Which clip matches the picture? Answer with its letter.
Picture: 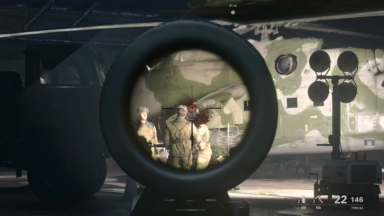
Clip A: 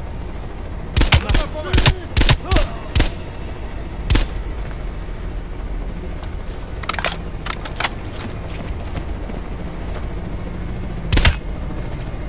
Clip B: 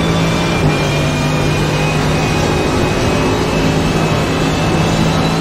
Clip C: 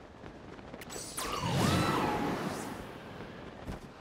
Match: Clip A